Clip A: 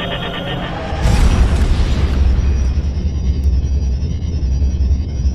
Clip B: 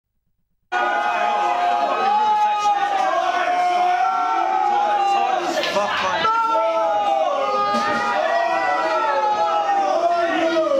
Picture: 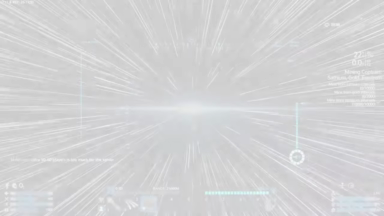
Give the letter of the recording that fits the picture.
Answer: A